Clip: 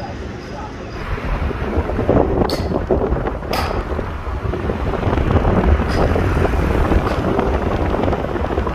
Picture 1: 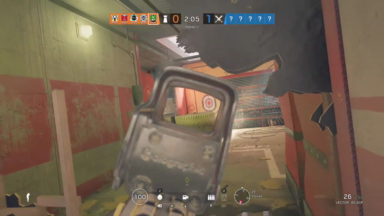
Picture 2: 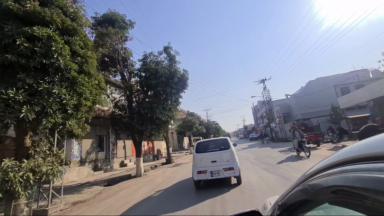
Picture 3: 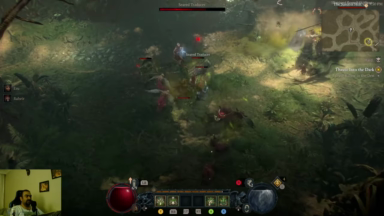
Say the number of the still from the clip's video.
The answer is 2